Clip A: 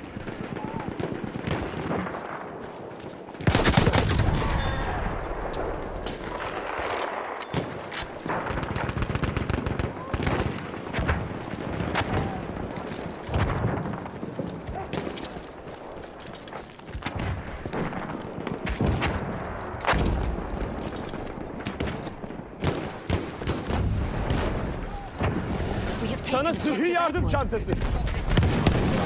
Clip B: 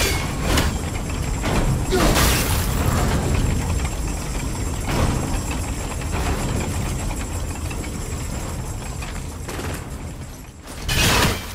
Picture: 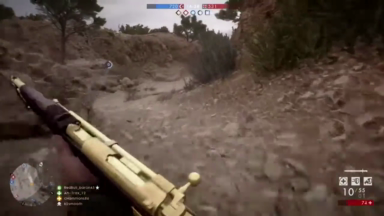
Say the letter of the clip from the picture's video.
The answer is A